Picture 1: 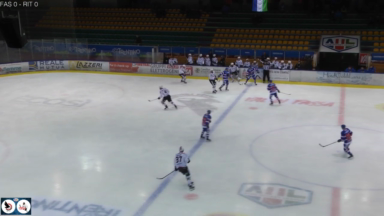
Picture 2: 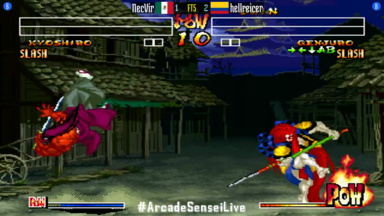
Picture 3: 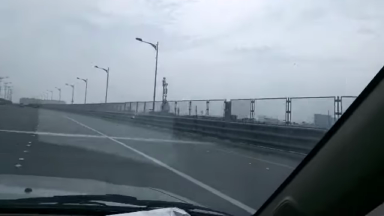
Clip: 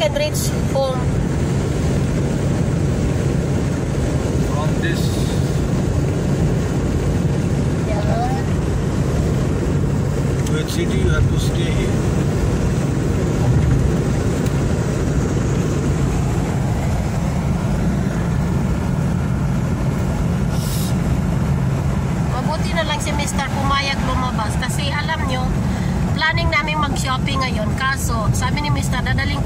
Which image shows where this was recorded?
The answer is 3